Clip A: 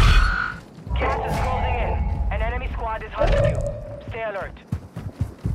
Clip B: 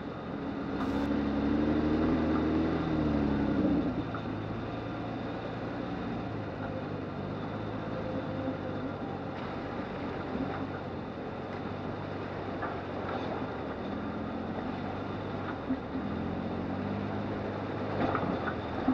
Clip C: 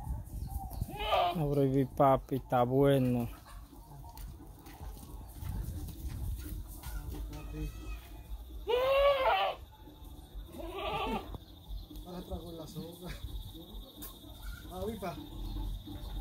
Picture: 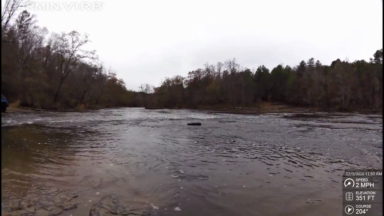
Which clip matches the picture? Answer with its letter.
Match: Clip B